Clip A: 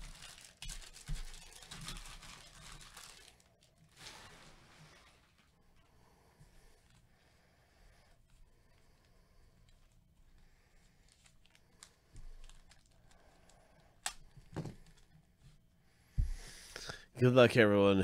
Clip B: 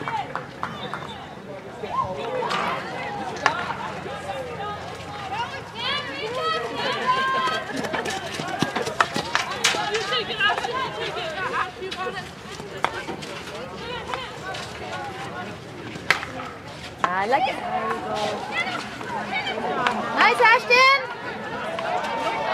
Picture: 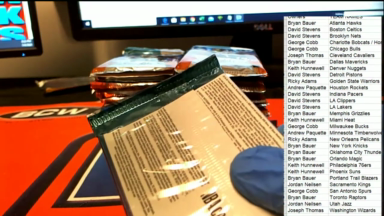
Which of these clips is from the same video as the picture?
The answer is A